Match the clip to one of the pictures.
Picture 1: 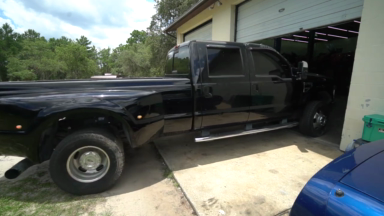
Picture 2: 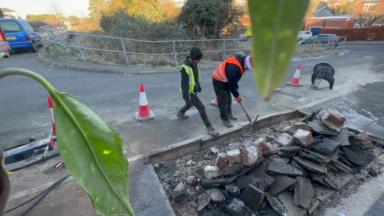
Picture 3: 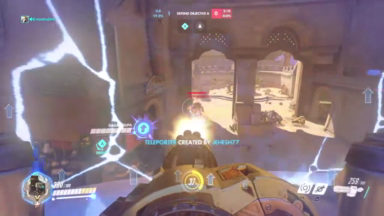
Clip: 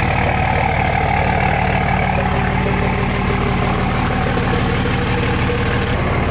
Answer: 1